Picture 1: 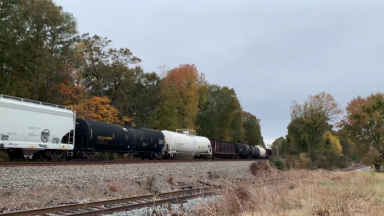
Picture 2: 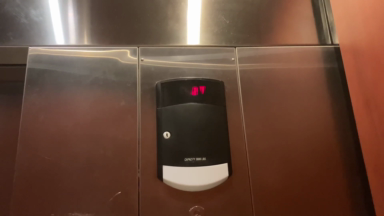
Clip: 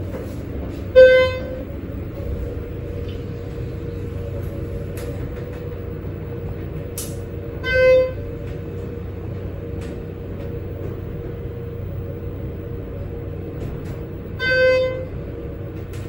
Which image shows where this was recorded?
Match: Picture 2